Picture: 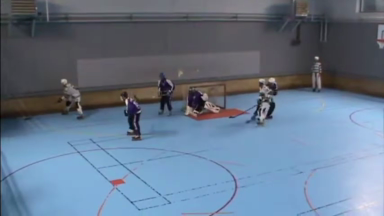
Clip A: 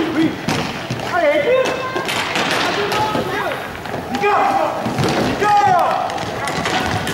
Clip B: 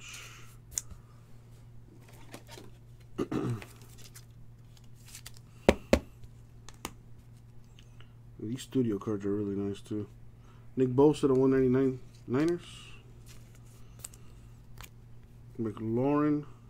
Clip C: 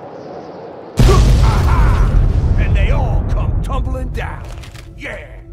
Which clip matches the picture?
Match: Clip A